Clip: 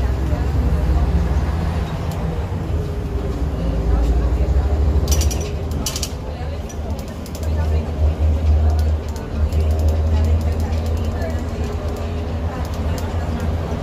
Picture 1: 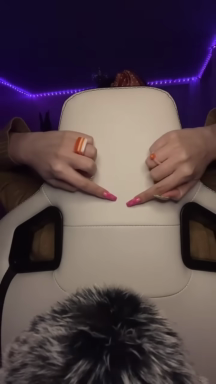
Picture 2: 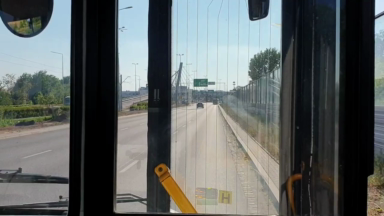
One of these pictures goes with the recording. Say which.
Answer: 2